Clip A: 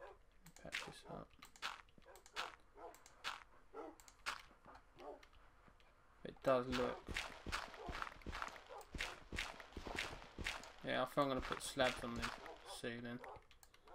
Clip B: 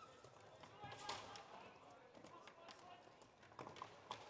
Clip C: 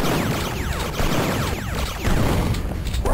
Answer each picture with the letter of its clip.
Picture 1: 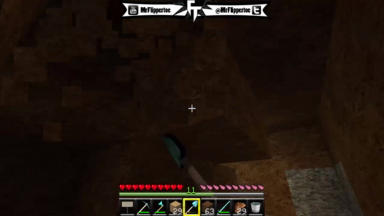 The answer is A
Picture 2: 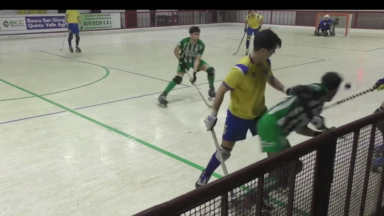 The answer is B